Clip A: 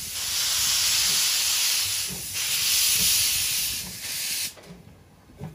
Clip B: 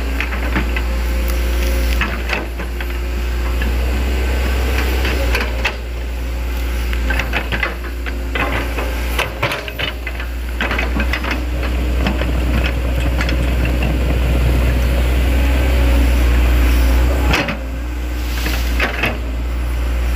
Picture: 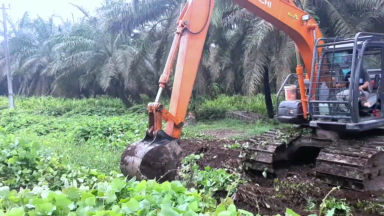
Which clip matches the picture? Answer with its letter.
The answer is B